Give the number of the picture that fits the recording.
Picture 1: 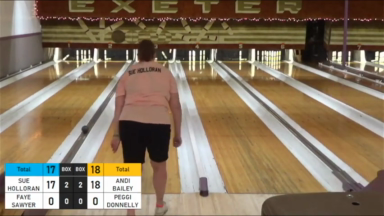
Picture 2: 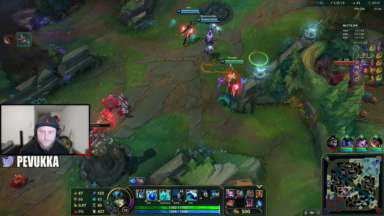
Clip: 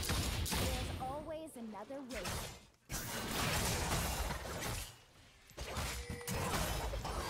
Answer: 2